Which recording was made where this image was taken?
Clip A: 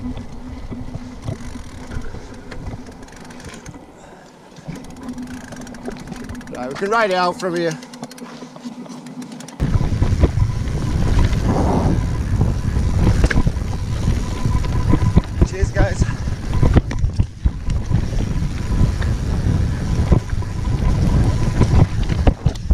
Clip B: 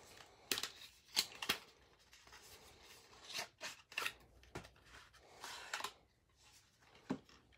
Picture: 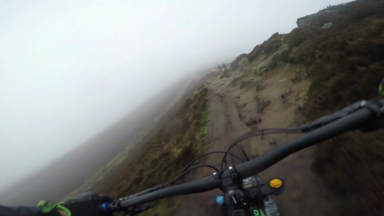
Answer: A